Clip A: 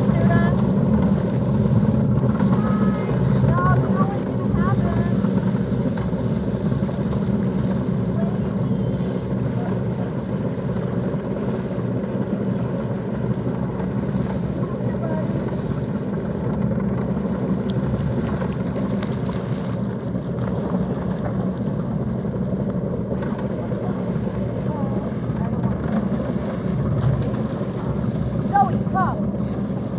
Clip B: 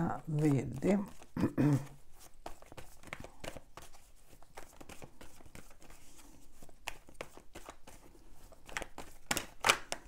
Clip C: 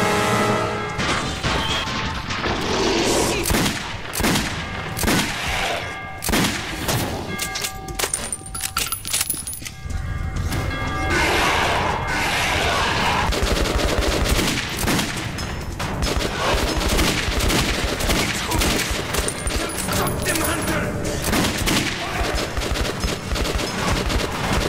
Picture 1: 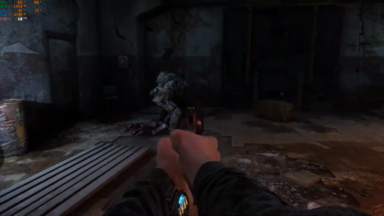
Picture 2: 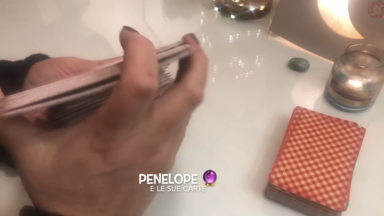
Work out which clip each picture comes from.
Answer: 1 C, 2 B